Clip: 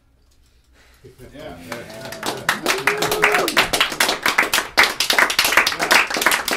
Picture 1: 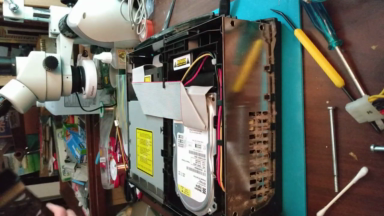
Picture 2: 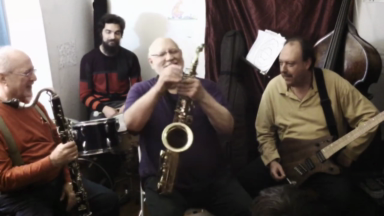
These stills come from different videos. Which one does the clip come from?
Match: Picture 2